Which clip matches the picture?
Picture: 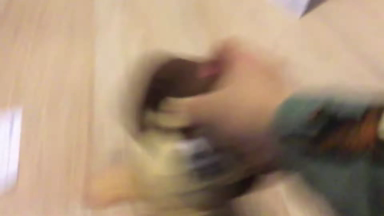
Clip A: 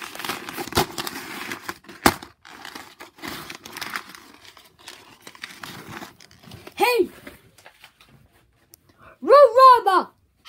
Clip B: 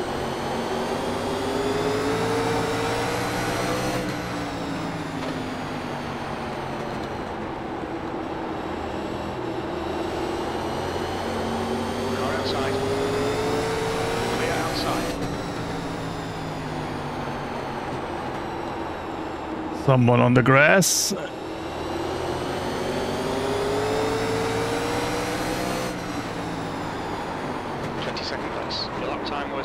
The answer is A